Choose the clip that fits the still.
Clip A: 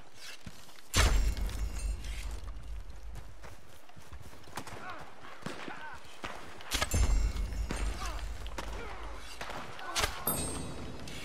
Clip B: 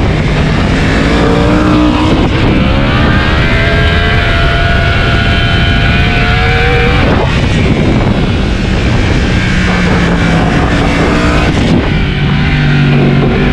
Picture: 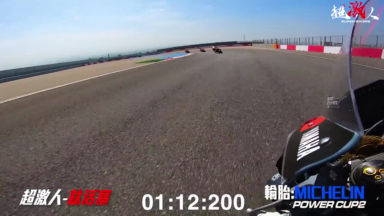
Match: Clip B